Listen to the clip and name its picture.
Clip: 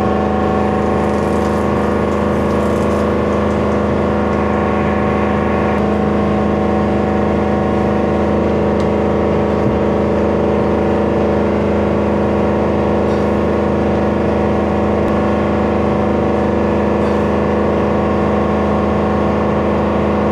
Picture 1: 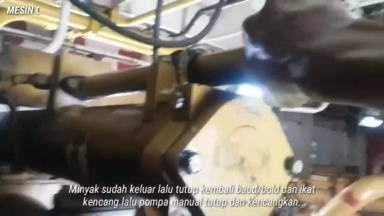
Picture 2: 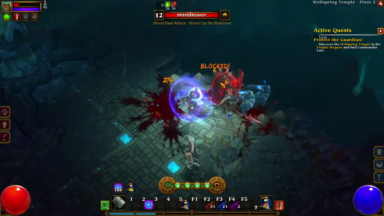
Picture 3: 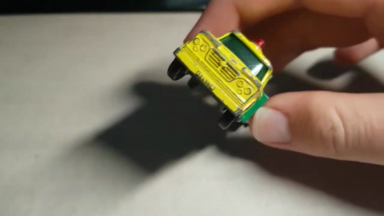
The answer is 1